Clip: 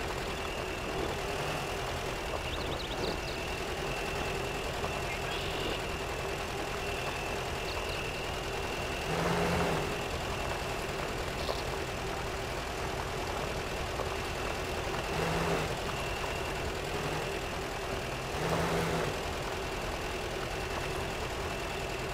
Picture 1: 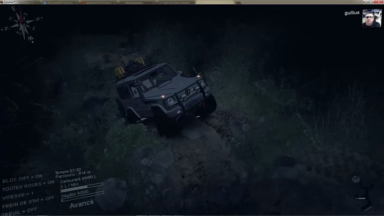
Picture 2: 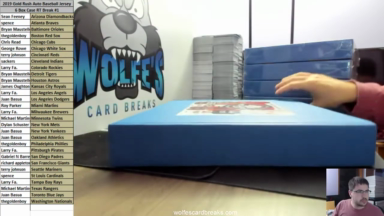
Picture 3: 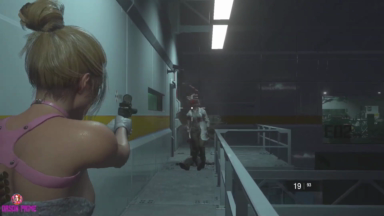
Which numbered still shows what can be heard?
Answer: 1